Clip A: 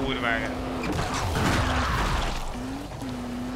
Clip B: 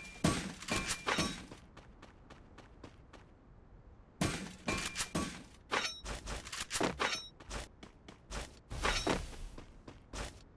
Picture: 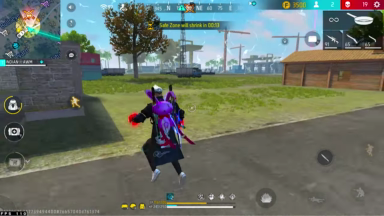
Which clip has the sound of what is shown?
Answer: B